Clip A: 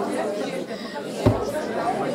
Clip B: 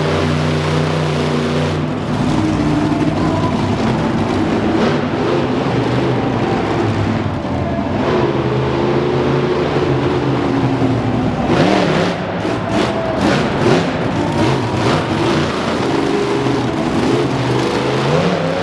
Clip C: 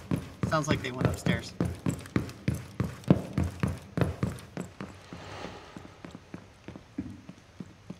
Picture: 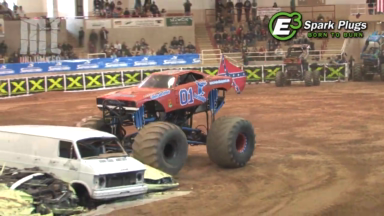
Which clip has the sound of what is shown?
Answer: B